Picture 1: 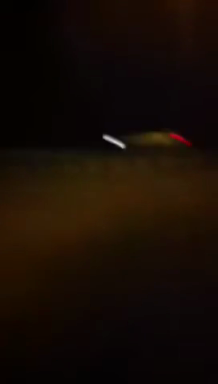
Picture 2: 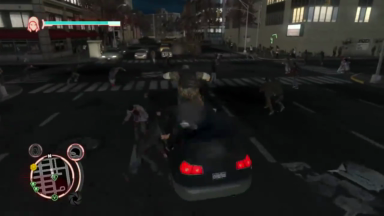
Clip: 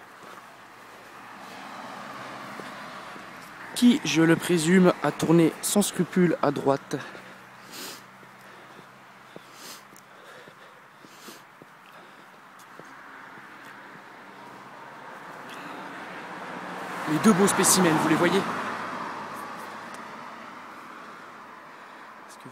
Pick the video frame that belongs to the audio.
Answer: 1